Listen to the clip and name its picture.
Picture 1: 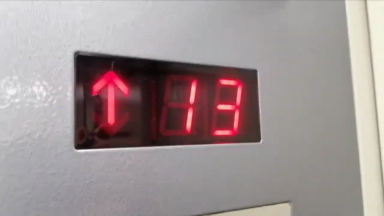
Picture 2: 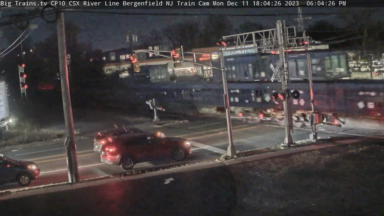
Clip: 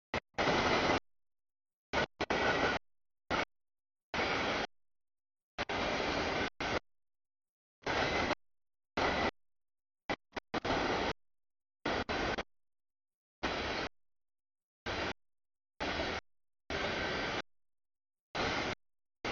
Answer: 2